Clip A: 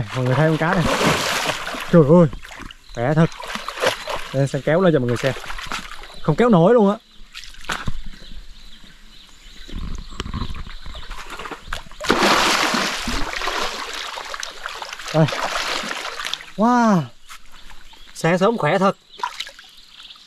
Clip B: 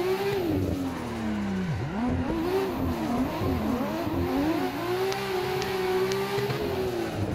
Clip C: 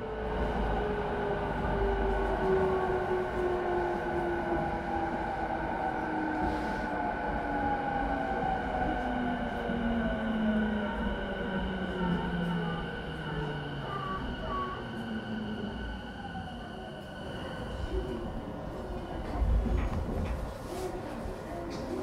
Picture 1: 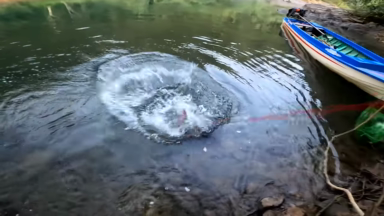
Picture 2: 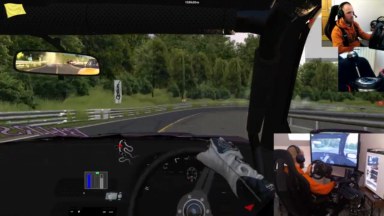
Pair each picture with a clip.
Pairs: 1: A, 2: B